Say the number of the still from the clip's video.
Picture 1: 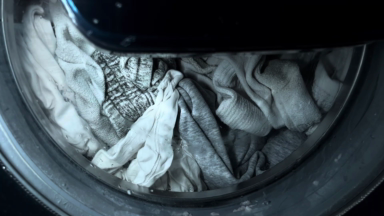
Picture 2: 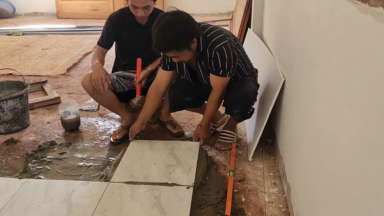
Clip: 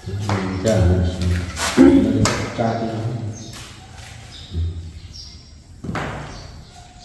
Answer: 2